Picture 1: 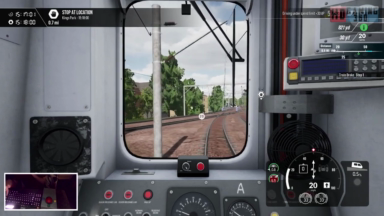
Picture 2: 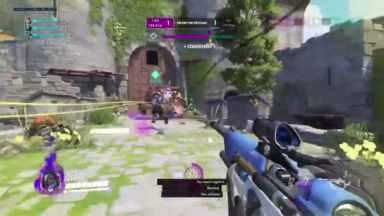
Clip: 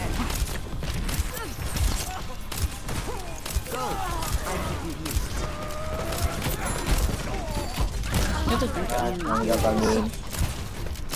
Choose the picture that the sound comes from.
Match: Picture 2